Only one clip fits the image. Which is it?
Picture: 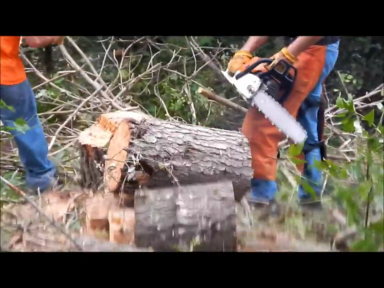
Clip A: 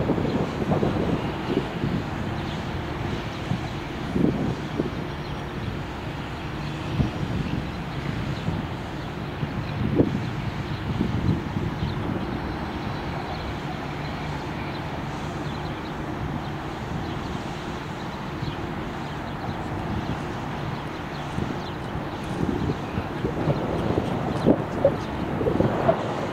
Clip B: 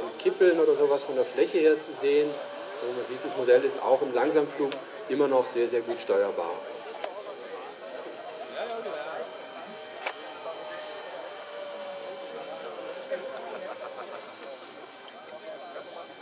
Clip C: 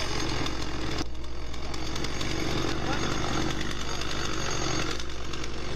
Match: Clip C